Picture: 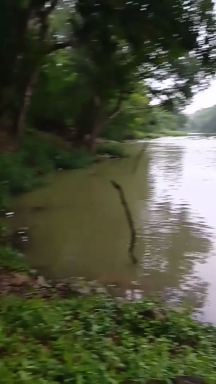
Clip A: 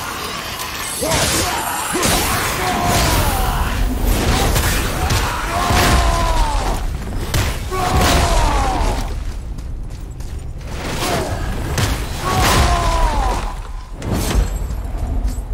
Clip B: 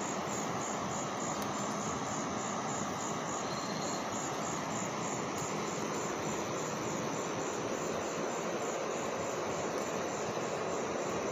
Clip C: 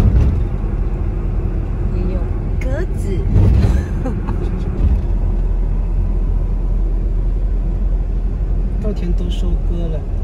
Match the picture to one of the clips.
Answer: B